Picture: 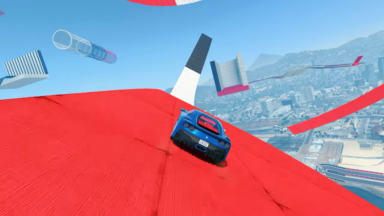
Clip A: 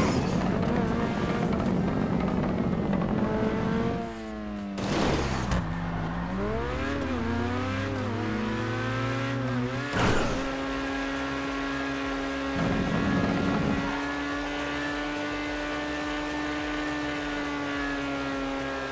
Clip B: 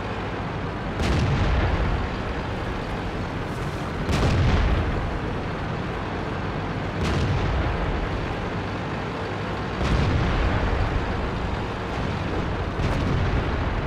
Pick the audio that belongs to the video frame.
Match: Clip A